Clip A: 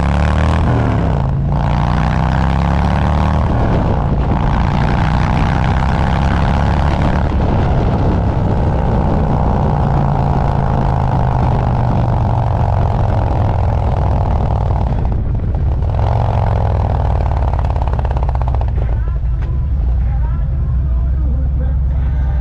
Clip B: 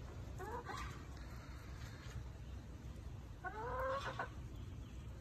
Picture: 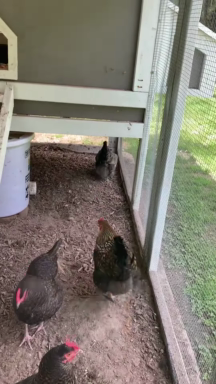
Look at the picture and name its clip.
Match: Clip B